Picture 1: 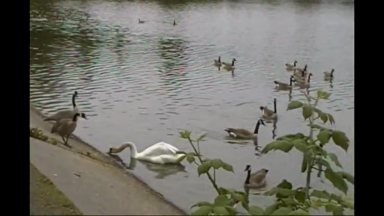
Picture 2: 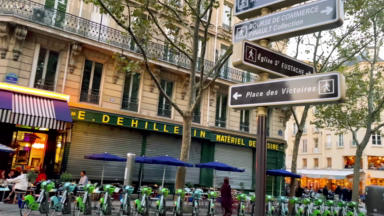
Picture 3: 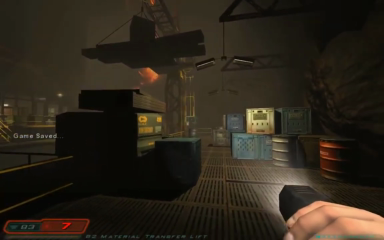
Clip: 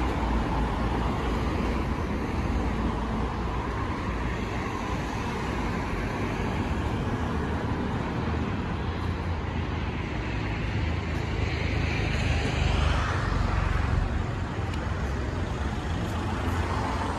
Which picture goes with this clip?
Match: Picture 2